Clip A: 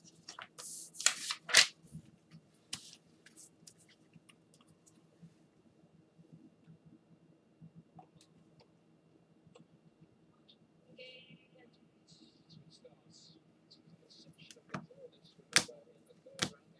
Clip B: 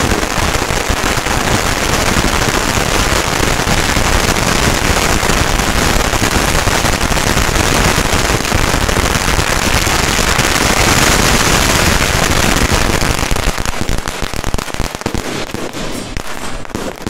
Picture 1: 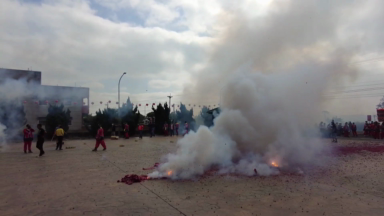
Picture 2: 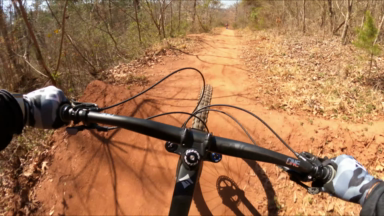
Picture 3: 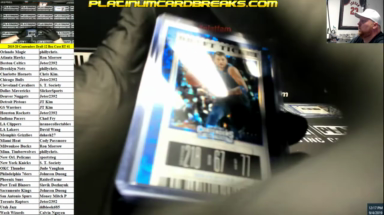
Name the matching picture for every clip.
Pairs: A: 3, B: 1